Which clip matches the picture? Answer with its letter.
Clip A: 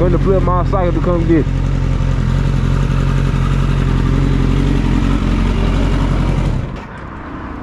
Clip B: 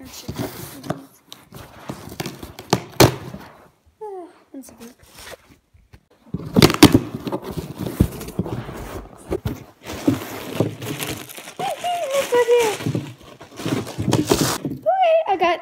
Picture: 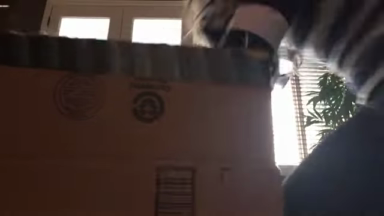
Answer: B